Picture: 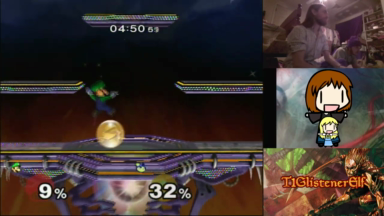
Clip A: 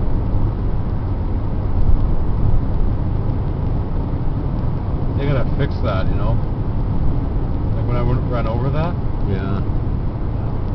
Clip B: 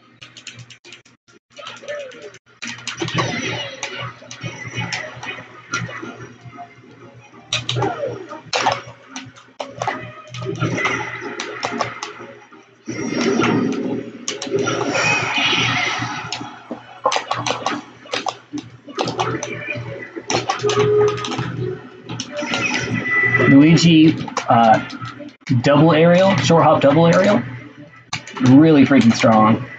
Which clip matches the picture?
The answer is B